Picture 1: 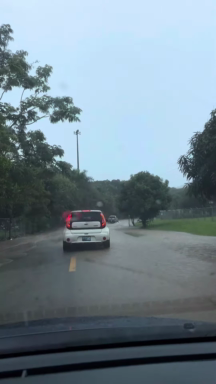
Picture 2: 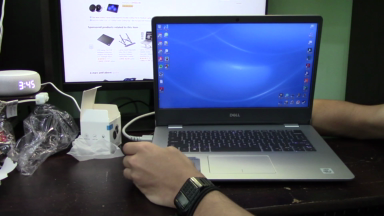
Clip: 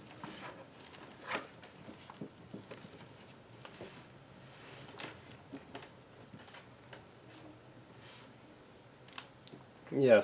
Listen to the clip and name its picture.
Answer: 2